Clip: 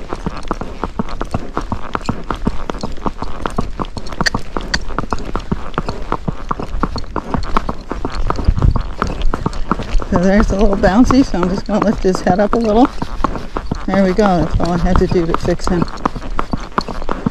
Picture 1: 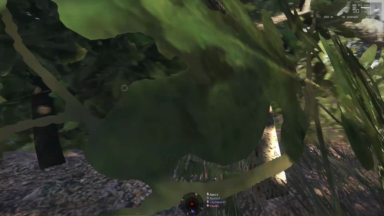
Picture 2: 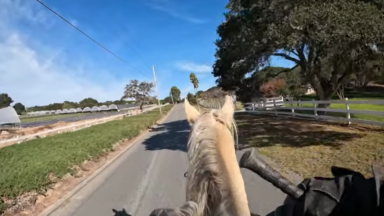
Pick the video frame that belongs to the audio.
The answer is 2